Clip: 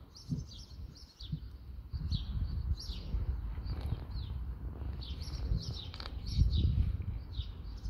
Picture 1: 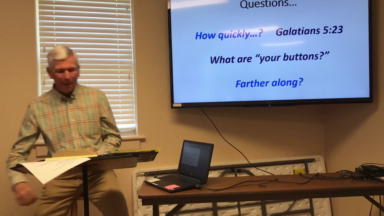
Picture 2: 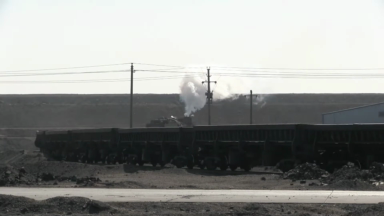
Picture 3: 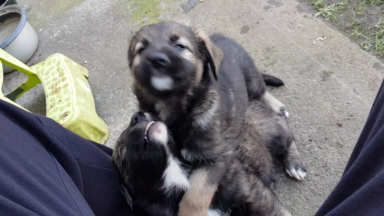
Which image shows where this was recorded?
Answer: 3